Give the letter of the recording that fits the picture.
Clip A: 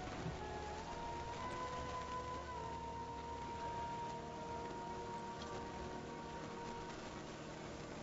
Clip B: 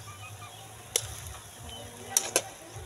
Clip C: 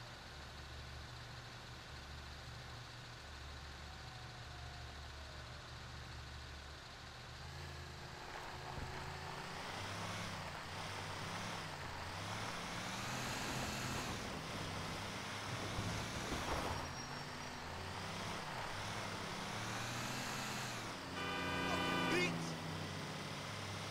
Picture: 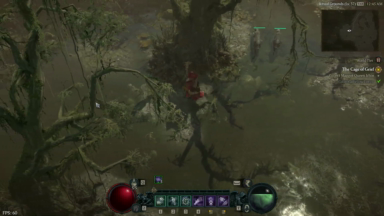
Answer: A